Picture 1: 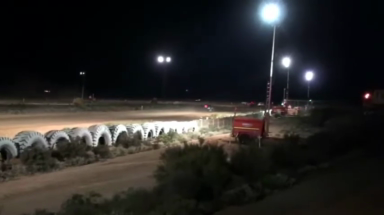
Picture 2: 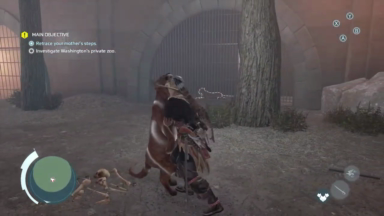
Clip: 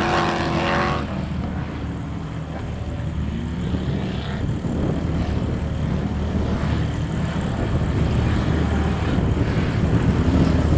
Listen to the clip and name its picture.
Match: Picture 1